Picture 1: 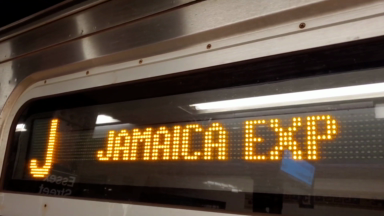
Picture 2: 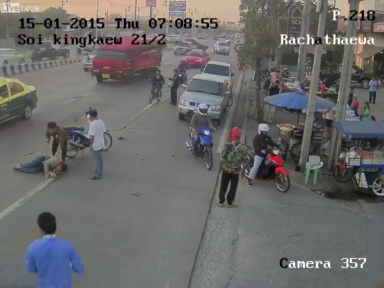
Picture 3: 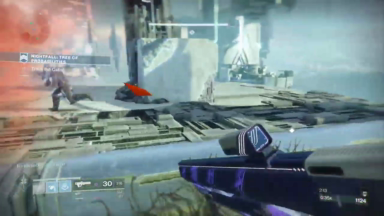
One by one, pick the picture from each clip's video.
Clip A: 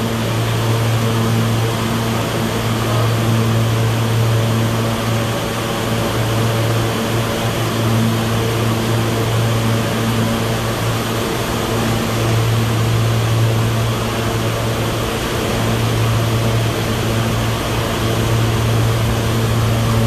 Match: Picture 1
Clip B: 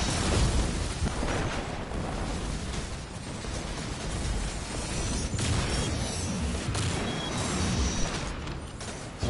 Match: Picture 3